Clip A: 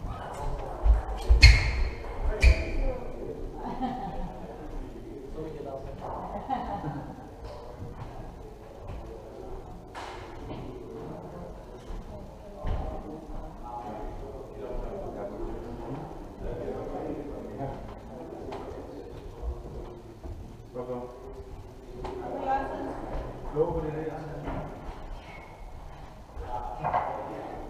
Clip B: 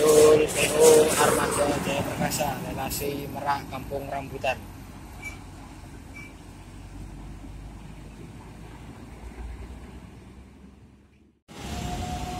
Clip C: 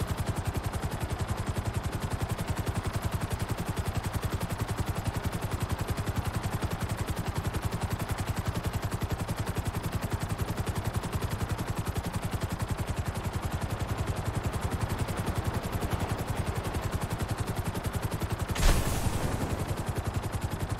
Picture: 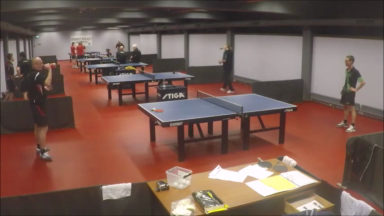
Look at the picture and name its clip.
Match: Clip A